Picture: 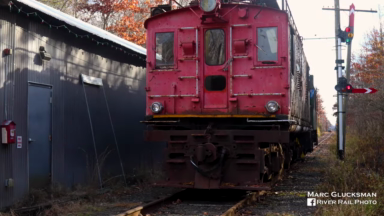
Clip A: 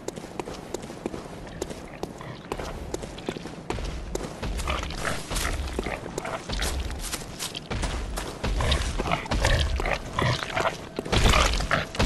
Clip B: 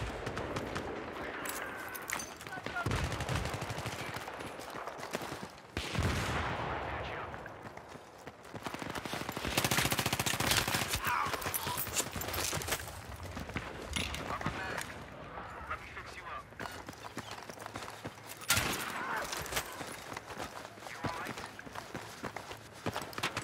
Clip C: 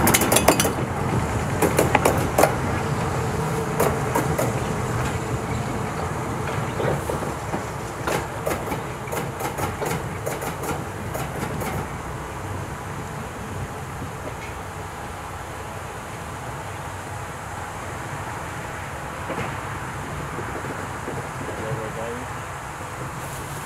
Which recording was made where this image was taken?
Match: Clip C